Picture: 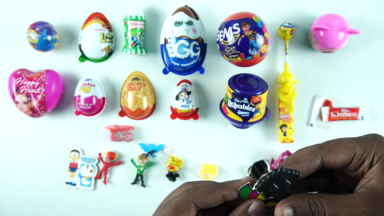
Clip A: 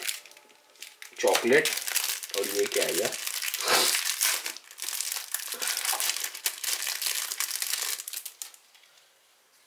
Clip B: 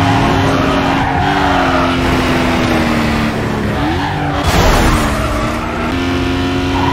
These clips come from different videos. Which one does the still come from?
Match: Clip A